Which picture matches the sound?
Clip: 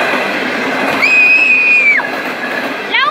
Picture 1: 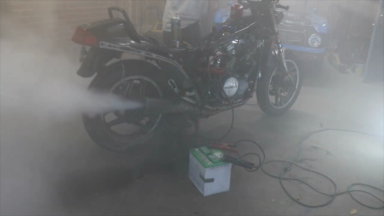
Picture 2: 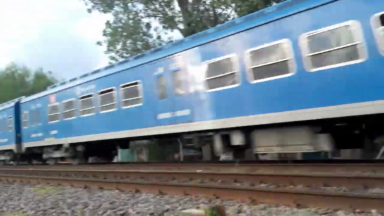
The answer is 2